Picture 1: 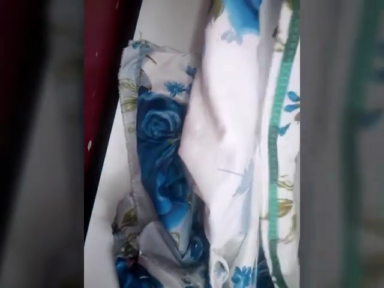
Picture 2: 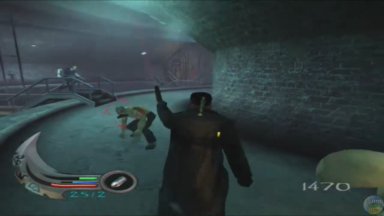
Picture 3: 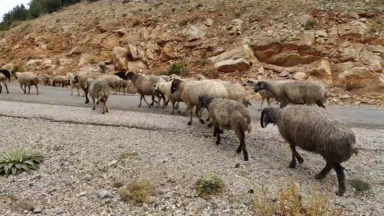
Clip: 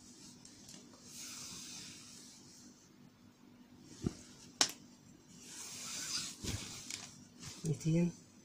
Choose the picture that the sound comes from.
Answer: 1